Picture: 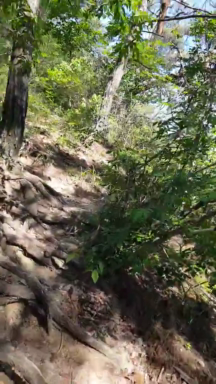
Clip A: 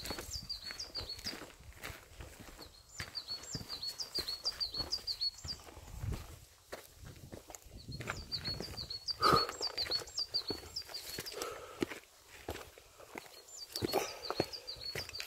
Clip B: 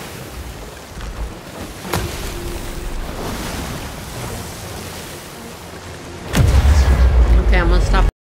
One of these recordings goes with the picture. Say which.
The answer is A